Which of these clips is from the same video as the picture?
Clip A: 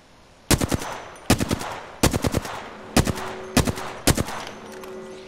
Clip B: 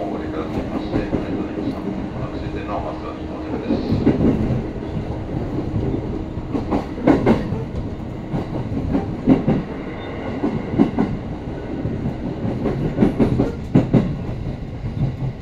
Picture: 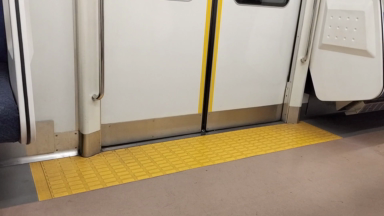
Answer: B